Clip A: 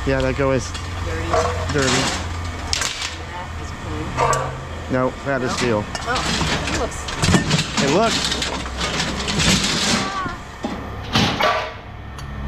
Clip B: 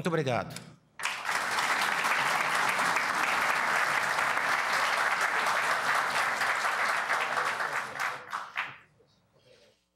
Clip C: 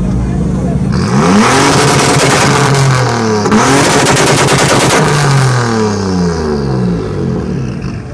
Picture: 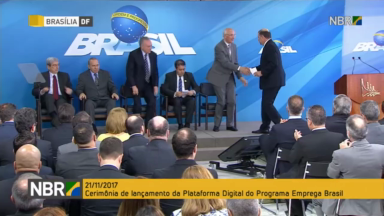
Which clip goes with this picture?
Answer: B